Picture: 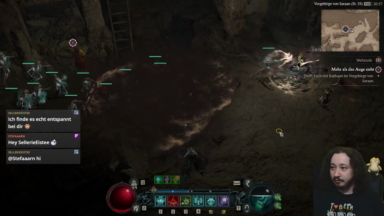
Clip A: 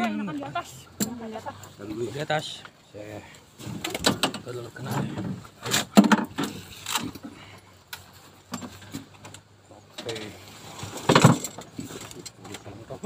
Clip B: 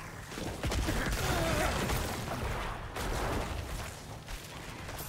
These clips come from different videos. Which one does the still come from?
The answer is B